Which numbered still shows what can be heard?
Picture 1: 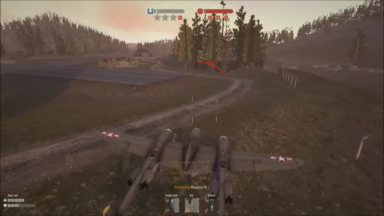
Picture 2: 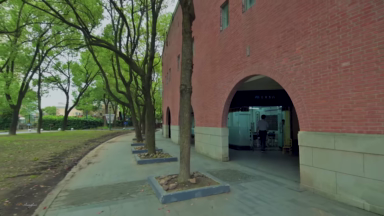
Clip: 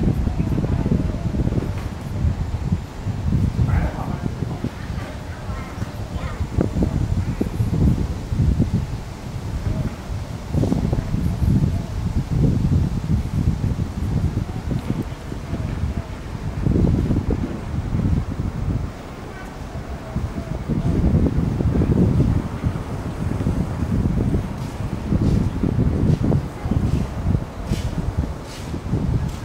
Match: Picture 2